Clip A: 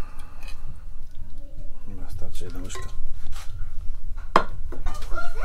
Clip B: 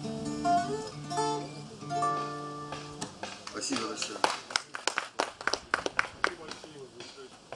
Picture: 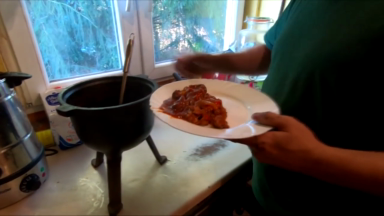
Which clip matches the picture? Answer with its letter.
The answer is A